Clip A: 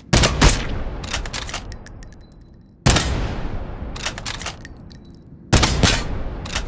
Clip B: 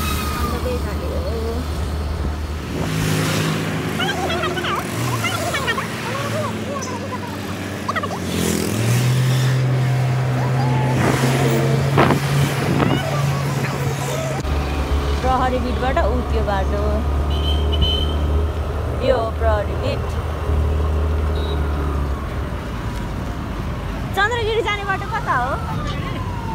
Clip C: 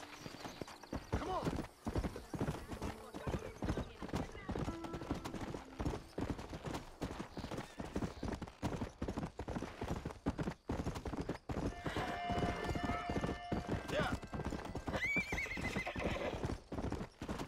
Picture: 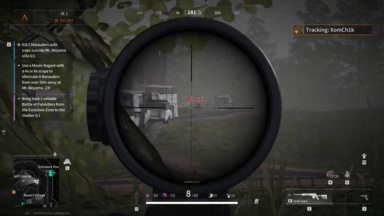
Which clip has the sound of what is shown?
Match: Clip A